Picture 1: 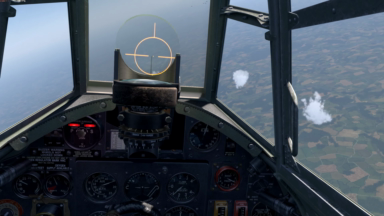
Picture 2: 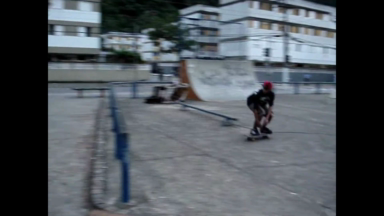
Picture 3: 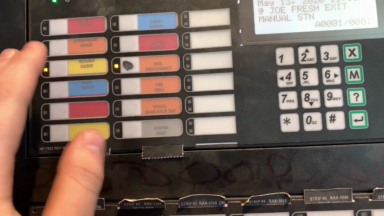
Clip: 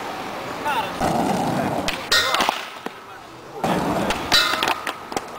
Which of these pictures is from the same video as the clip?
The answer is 2